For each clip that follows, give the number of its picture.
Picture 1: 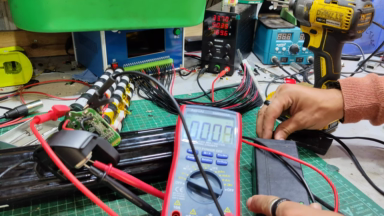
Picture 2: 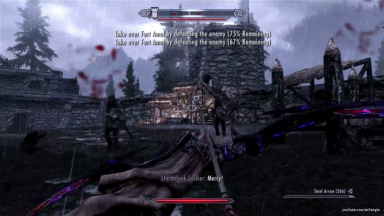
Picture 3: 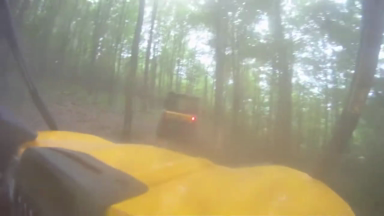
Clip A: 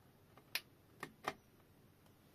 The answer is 1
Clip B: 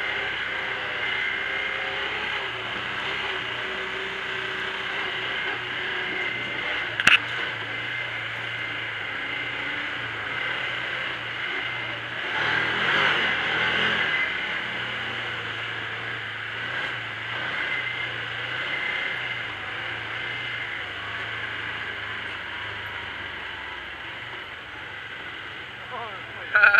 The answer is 3